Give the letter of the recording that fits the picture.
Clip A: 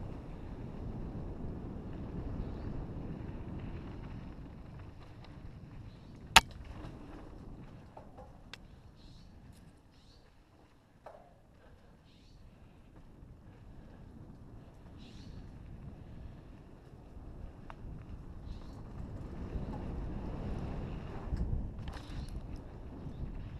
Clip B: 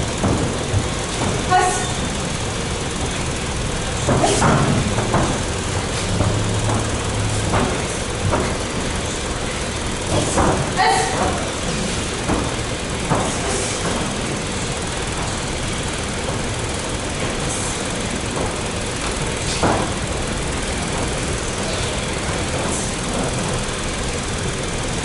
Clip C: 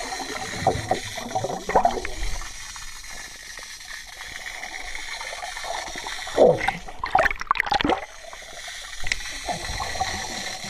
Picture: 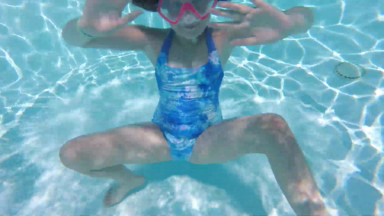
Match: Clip C